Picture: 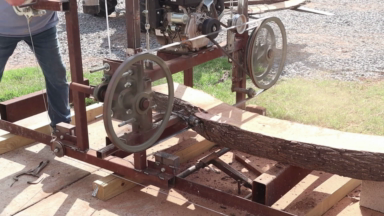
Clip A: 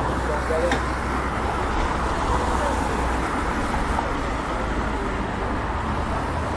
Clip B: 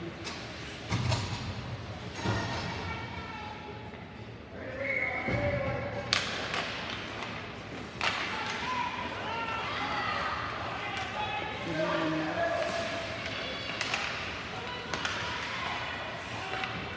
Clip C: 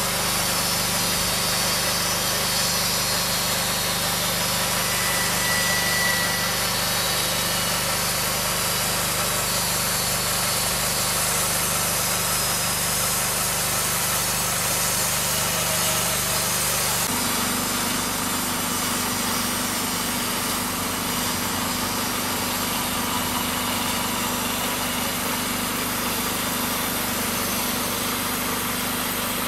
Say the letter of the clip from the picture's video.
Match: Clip C